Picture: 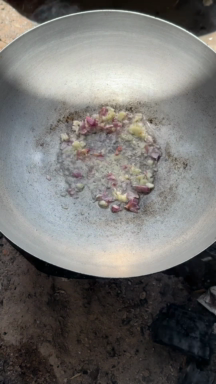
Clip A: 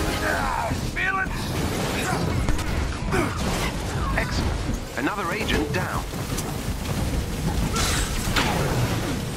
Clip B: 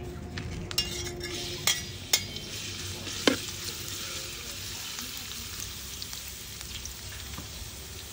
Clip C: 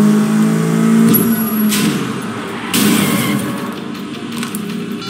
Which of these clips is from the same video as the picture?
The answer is B